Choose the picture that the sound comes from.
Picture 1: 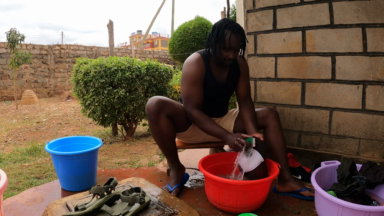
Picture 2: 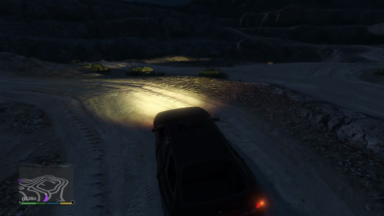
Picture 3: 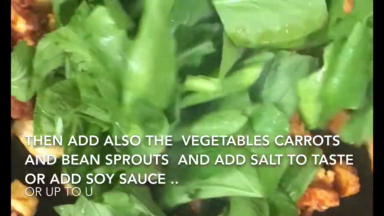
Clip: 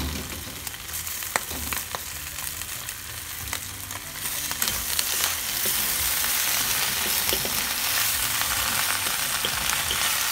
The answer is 3